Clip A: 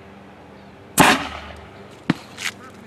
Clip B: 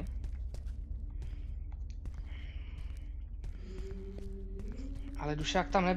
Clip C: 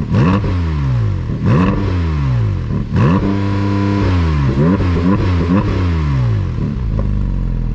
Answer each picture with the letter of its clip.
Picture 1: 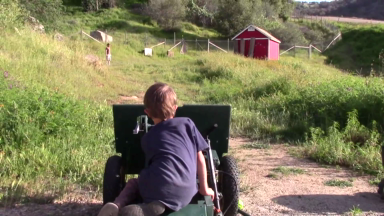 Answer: A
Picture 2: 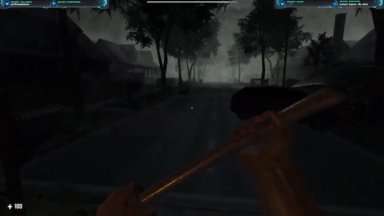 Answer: B